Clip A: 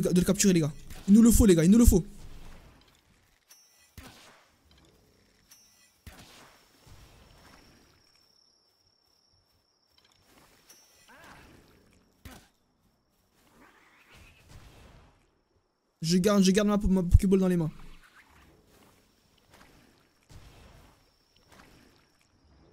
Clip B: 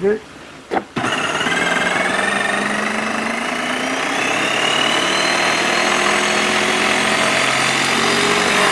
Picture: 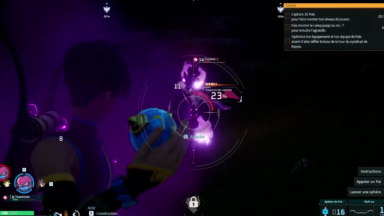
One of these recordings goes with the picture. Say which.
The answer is A